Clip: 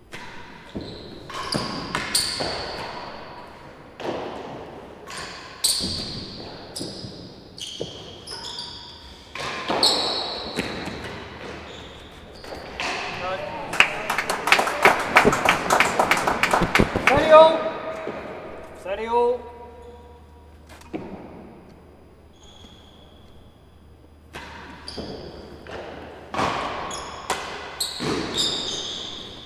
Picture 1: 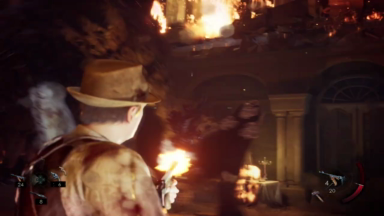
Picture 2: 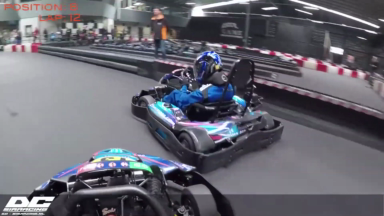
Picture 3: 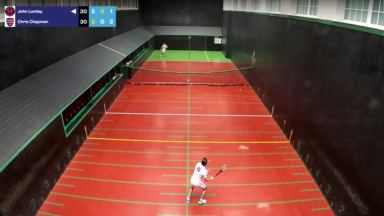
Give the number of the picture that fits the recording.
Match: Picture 3